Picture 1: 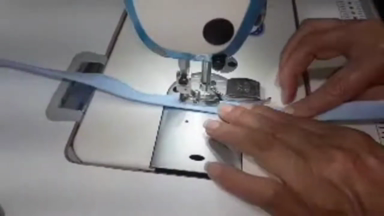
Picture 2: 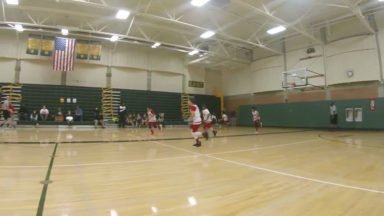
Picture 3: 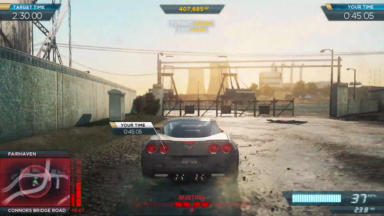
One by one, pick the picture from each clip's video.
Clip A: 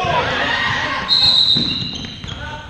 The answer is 2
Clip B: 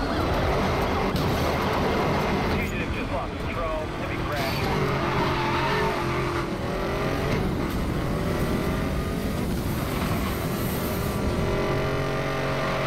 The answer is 3